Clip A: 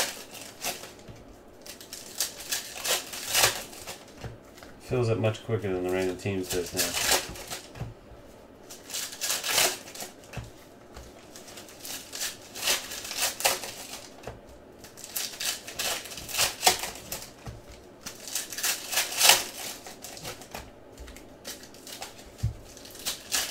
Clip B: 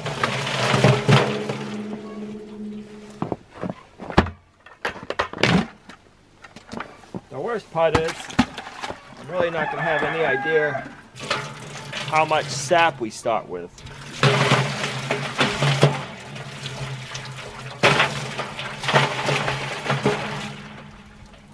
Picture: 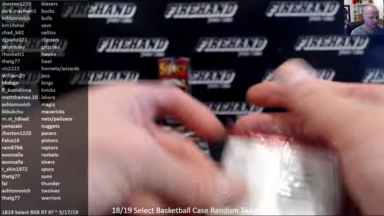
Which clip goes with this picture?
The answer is A